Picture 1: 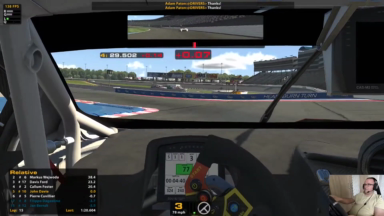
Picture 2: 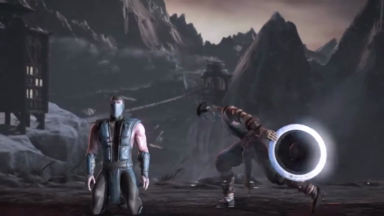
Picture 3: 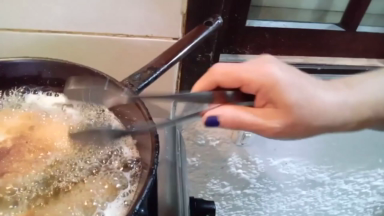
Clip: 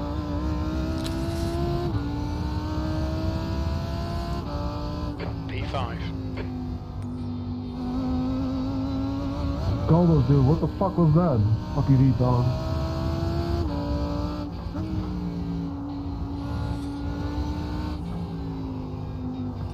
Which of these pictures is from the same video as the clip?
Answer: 1